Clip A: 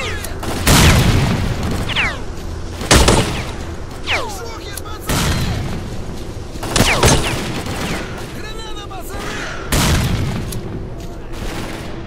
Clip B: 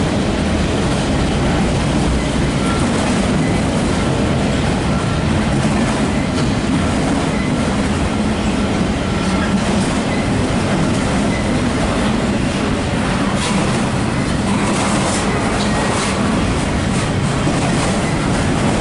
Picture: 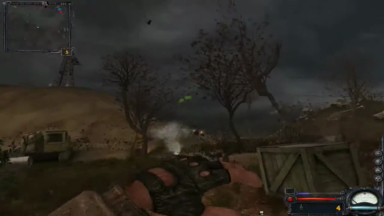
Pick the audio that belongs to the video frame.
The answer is A